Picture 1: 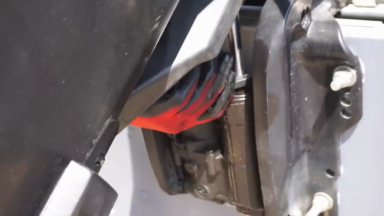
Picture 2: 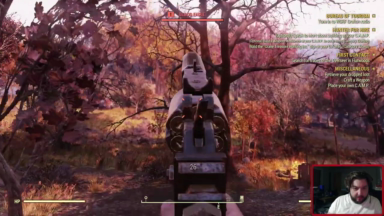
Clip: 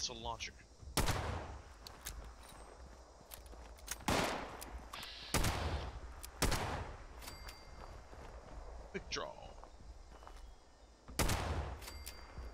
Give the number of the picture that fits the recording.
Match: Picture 2